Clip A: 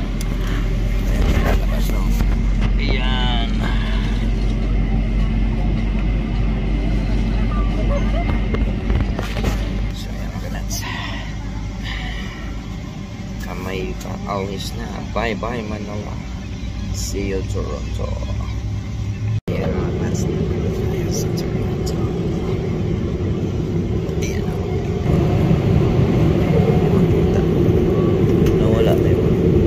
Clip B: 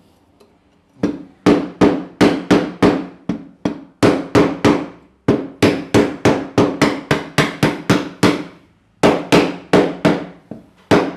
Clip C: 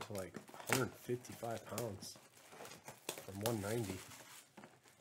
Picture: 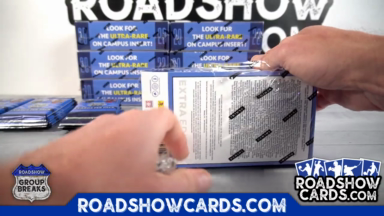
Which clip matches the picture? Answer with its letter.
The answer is C